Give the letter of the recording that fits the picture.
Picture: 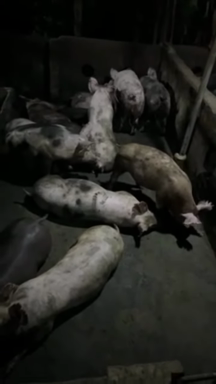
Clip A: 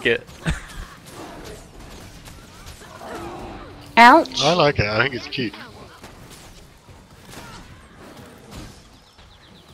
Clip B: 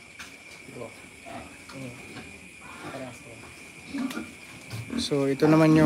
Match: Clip B